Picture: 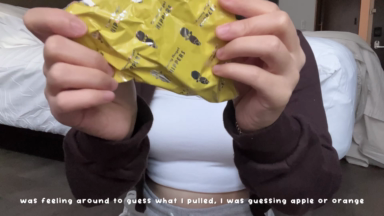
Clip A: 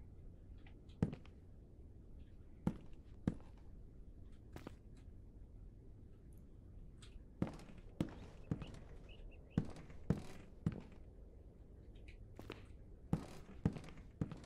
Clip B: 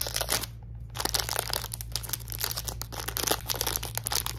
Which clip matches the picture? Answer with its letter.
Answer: B